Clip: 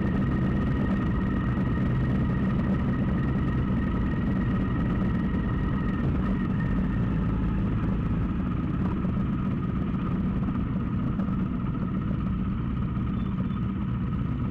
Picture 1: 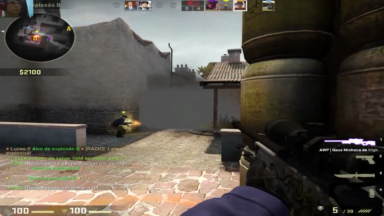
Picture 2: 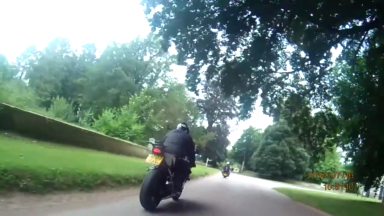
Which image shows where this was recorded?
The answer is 2